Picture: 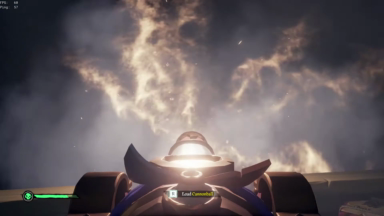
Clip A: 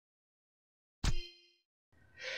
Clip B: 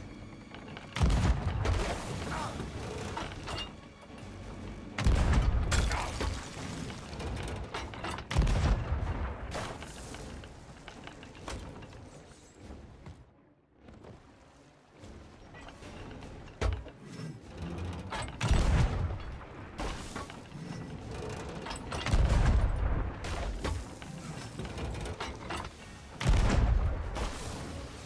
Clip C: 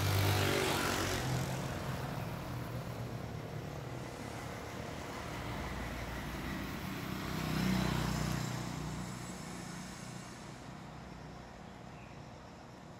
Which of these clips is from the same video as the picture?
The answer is B